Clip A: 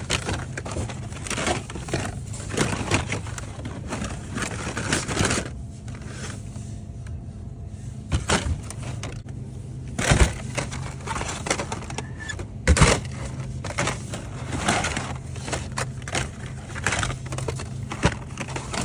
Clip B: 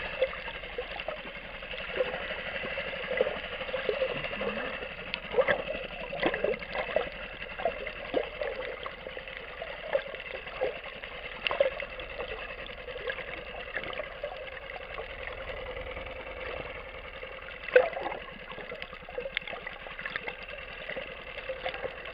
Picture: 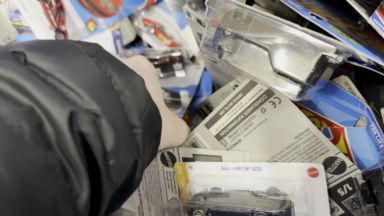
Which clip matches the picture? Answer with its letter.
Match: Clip A